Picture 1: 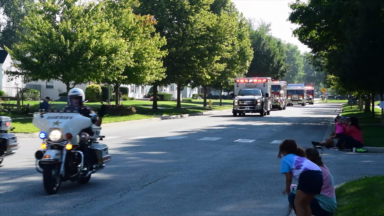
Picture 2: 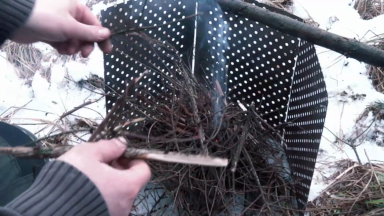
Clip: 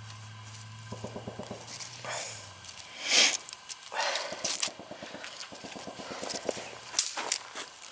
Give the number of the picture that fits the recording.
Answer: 2